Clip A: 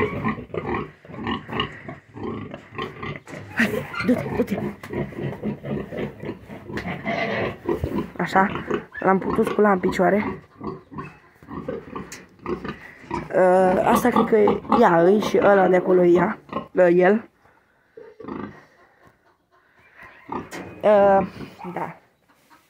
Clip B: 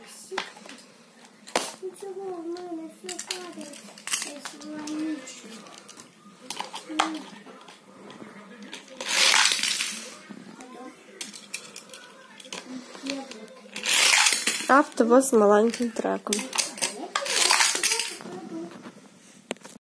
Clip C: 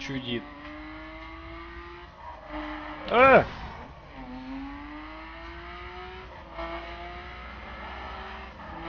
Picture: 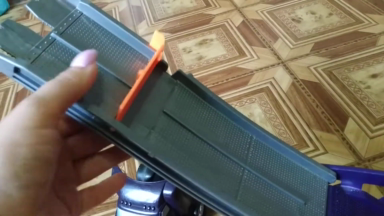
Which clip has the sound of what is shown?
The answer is B